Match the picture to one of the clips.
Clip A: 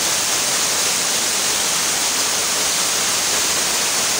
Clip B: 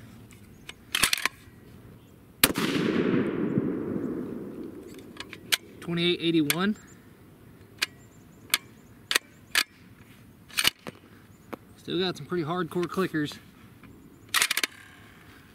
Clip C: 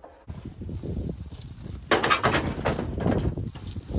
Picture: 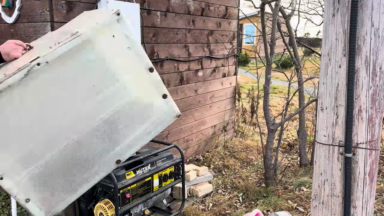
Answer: C